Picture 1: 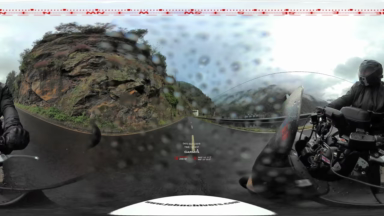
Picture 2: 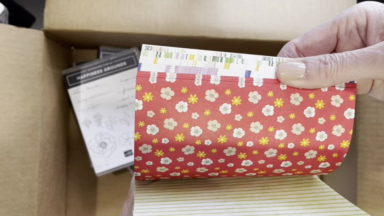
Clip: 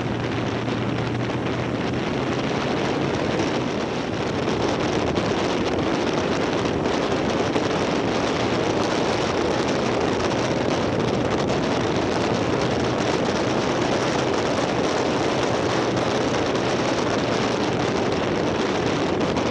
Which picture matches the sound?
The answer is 1